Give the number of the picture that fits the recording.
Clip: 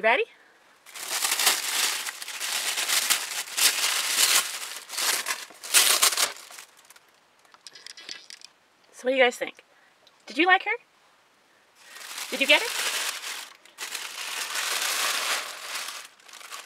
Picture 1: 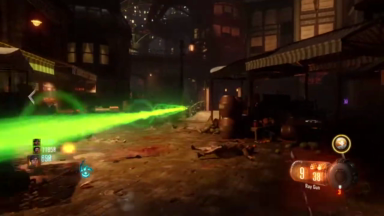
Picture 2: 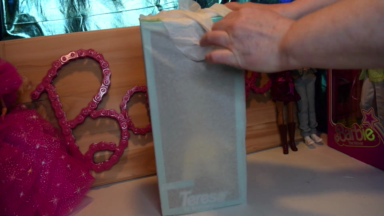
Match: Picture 2